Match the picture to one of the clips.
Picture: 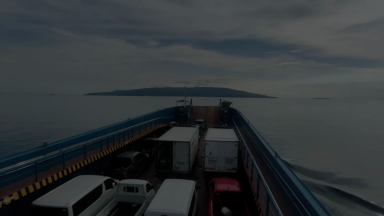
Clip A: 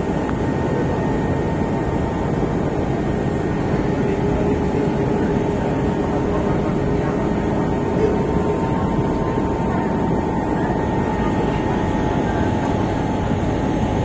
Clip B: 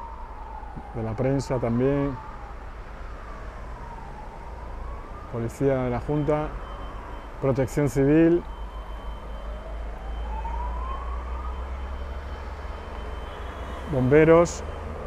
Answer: A